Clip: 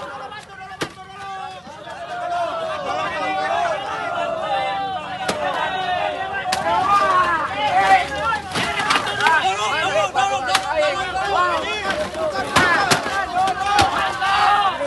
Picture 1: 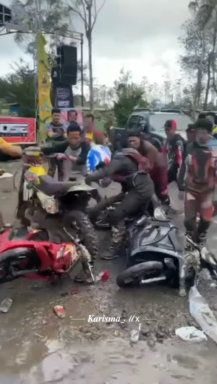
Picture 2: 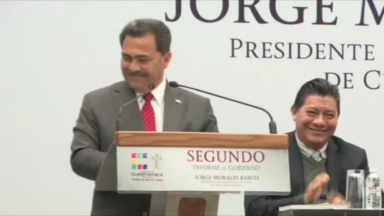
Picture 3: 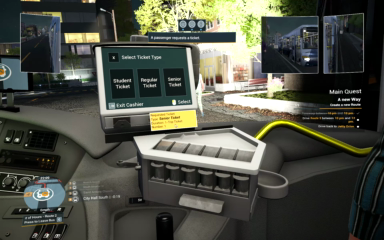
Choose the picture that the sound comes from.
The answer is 1